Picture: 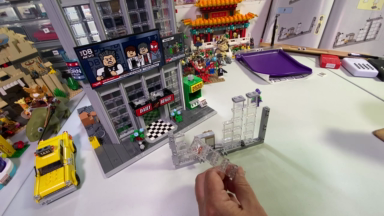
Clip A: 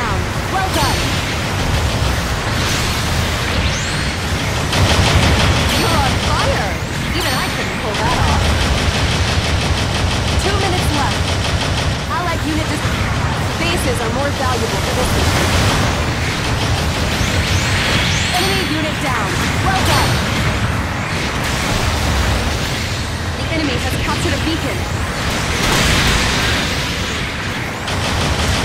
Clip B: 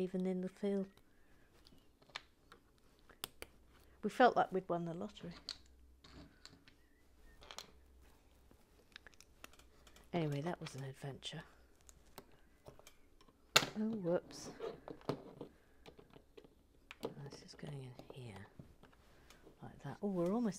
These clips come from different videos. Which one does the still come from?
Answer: B